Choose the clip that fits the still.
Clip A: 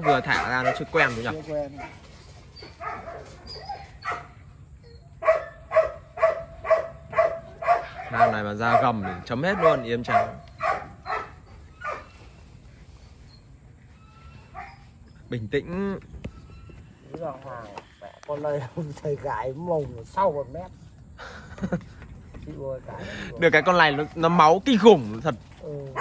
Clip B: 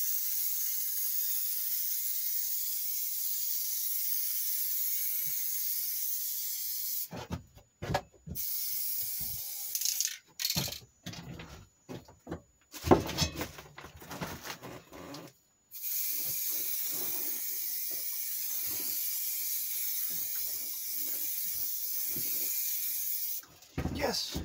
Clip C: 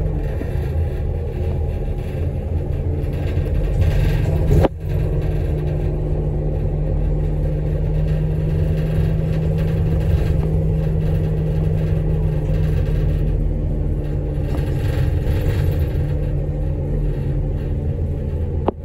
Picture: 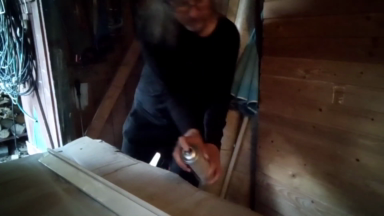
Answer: B